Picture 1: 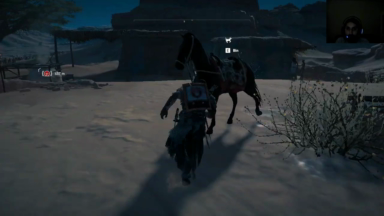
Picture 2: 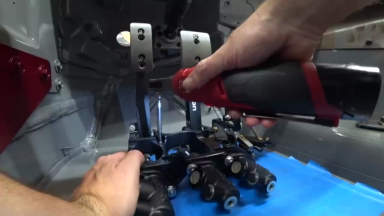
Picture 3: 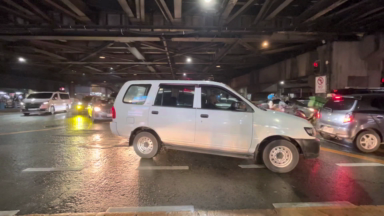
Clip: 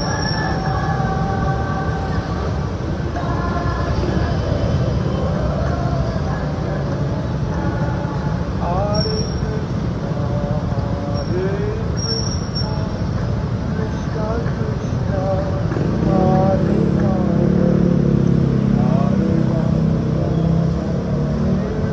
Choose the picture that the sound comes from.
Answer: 3